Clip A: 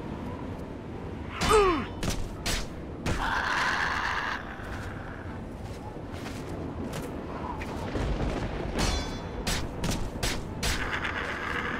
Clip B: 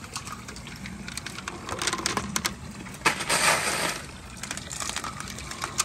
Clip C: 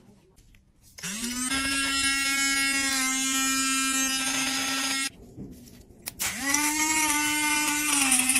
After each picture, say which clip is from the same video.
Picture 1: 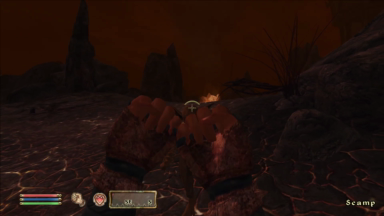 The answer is A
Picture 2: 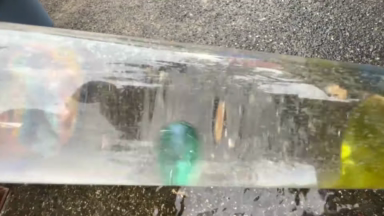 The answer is B